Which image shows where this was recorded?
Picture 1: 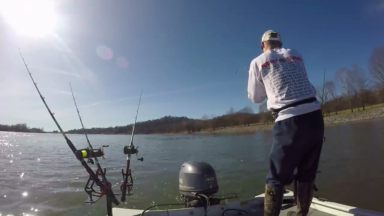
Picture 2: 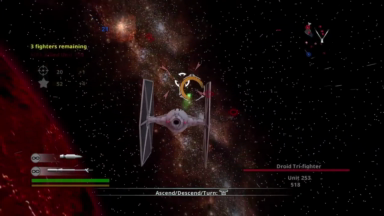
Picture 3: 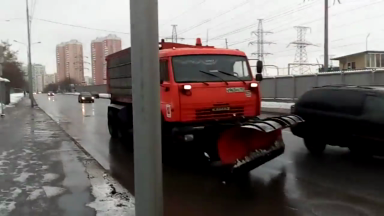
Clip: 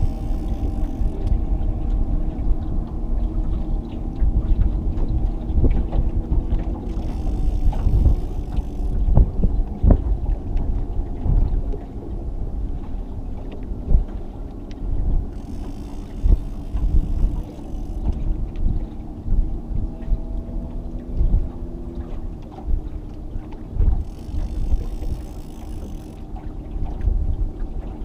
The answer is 1